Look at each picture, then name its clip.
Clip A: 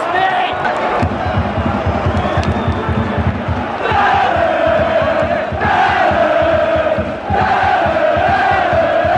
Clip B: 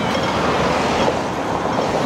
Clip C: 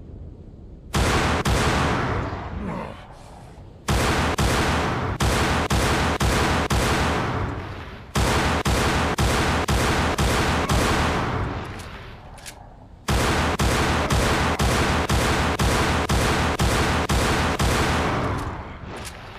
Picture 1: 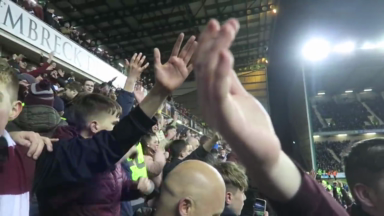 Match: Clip A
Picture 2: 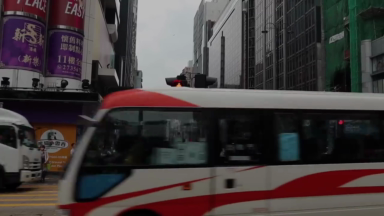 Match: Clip B